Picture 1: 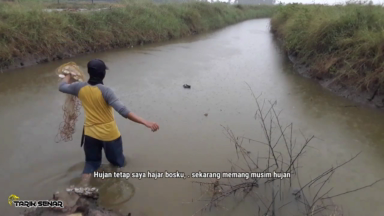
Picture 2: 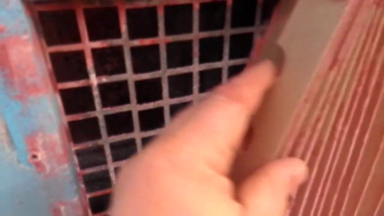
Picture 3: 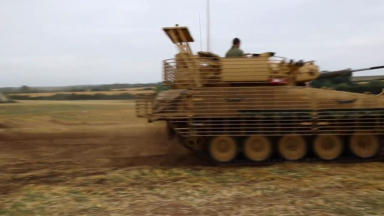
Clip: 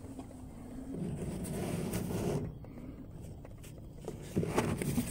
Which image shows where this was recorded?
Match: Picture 2